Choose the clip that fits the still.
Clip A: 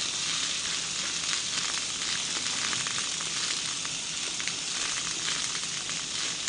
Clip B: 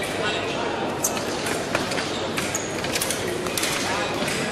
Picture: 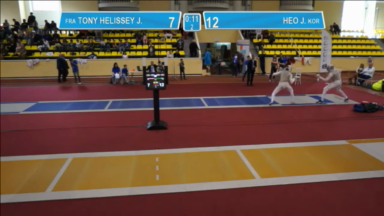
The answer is B